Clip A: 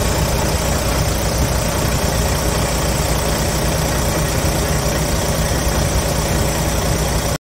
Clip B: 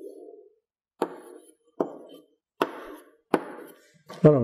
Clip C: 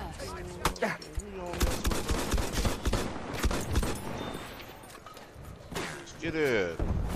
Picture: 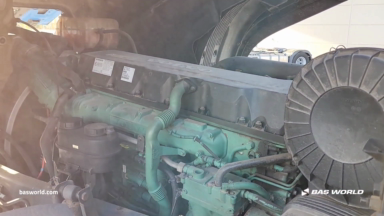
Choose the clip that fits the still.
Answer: A